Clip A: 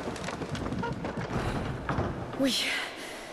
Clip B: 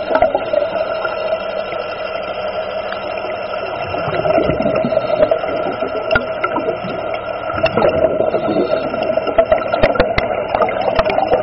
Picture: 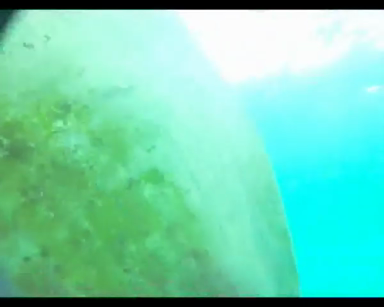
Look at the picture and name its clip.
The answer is B